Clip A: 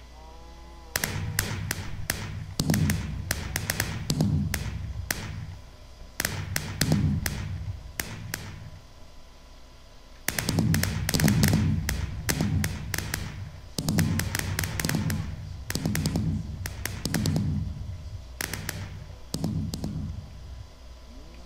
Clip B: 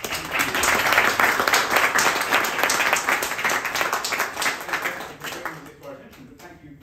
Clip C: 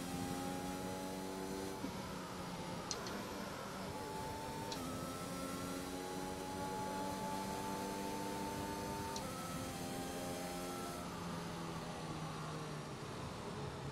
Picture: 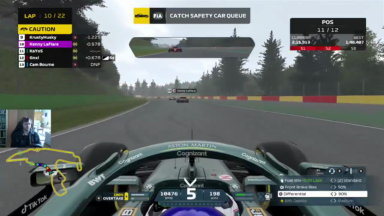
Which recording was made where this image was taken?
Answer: C